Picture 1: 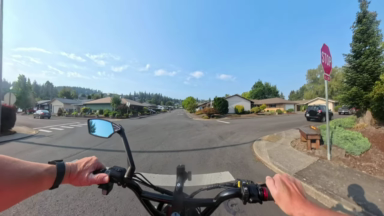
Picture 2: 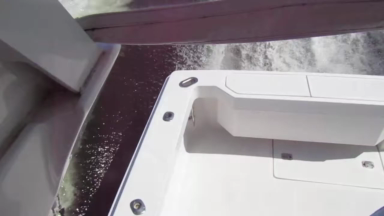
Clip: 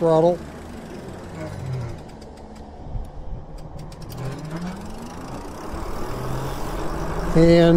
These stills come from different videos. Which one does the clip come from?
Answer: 1